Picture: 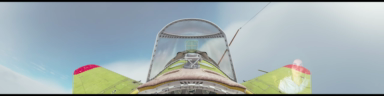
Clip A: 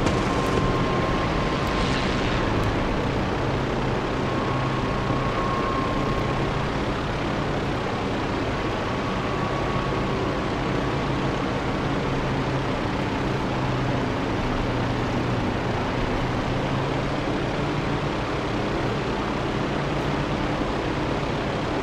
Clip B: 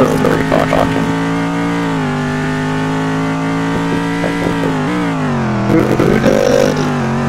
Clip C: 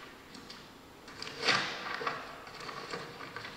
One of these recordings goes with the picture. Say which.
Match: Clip A